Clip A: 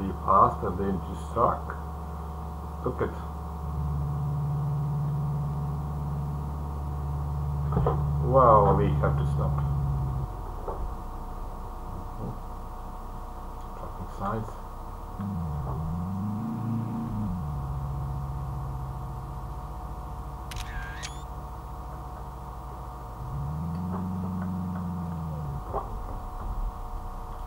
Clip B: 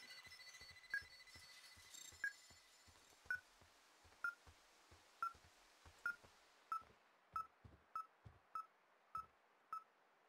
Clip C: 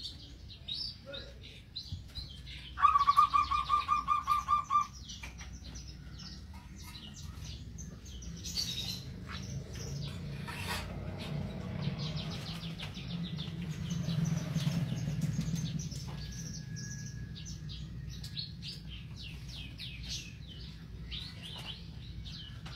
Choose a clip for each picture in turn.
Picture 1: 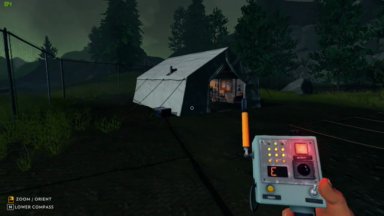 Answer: B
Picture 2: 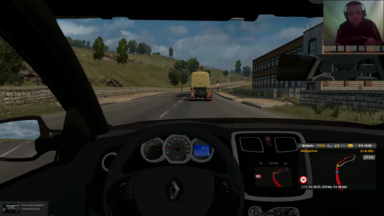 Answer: A